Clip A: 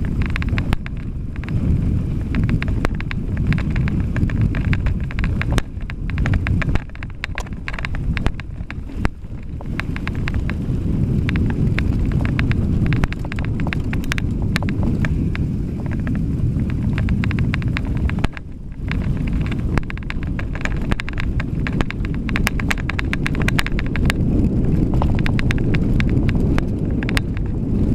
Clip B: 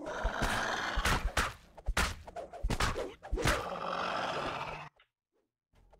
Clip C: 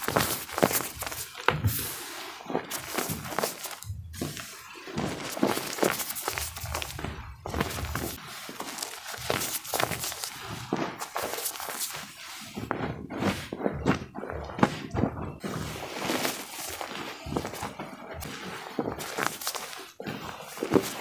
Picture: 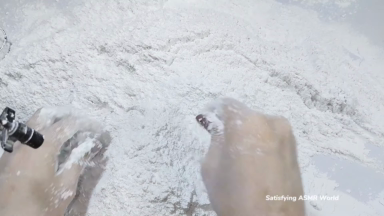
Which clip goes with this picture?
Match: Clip C